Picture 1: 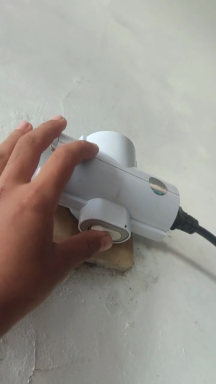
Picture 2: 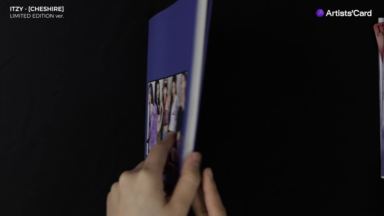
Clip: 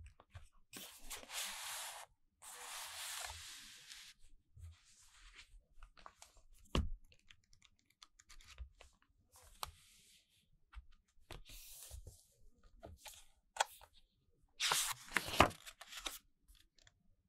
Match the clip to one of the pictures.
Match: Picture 2